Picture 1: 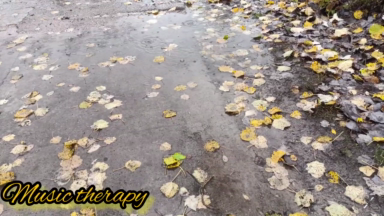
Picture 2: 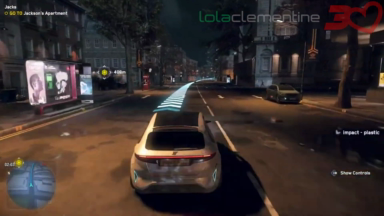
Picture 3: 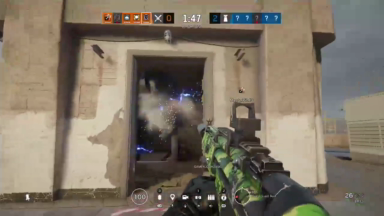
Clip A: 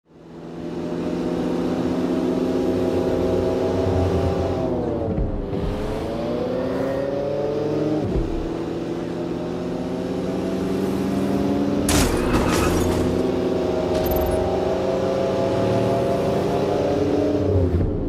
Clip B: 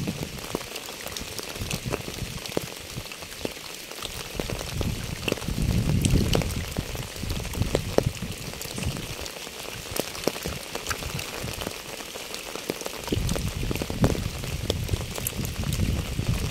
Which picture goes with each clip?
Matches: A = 2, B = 1